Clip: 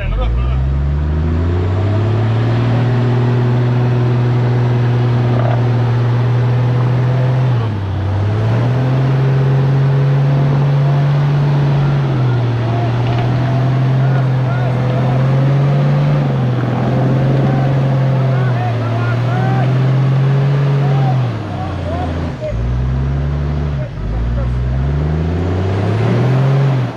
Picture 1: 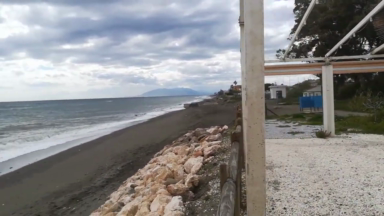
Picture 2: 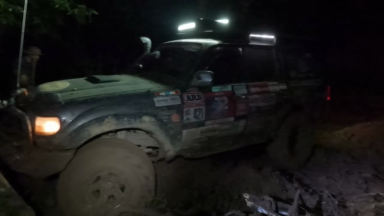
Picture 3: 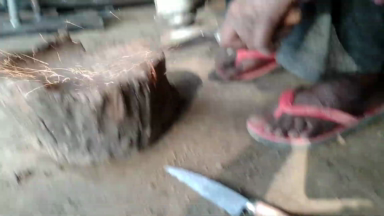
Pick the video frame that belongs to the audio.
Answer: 2